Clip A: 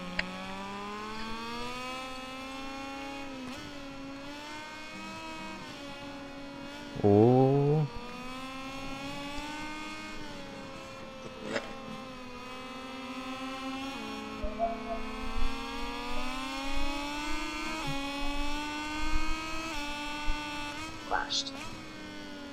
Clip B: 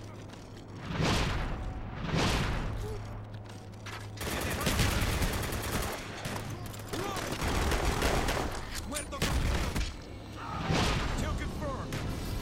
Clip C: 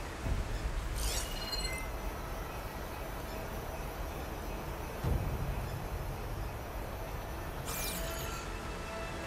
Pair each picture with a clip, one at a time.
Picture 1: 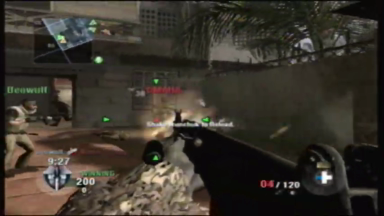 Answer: B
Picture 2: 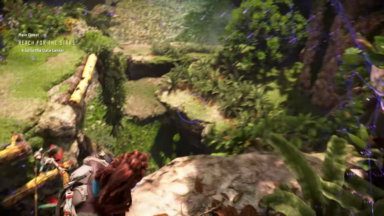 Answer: C